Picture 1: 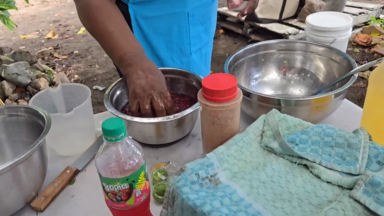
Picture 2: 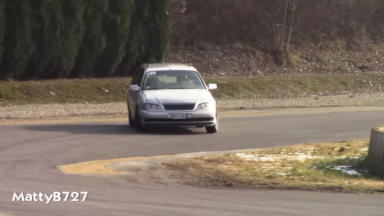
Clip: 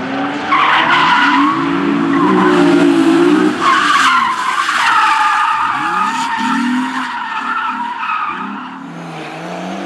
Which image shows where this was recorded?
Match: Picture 2